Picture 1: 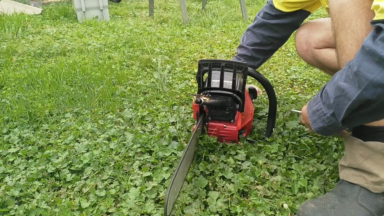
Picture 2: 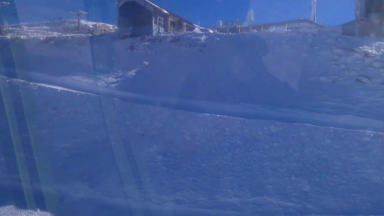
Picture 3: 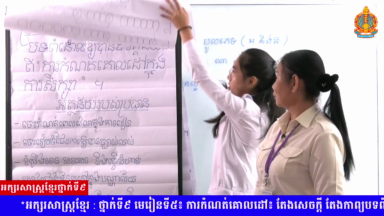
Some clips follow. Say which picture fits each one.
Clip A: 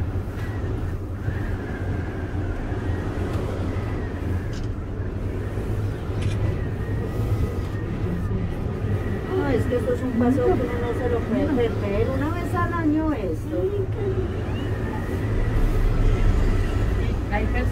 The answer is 2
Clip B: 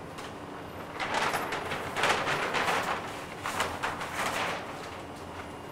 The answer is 3